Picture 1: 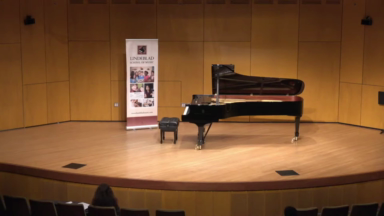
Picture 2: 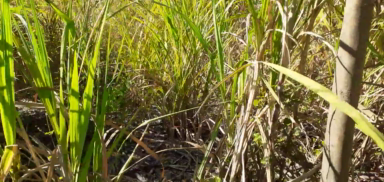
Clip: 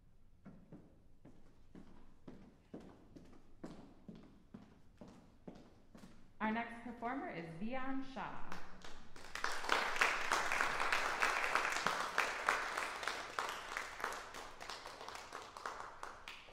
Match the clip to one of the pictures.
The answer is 1